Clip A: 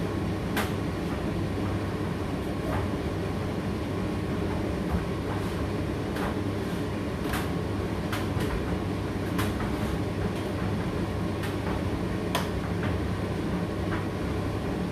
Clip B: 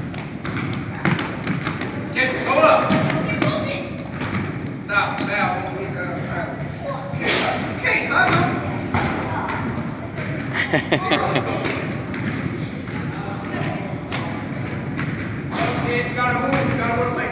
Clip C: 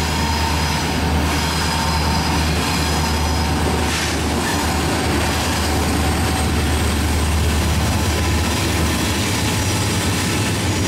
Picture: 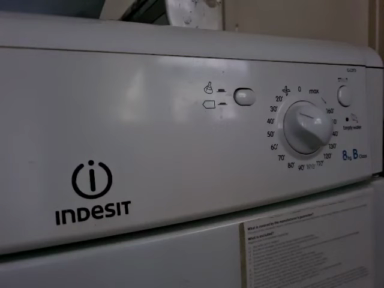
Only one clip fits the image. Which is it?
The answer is A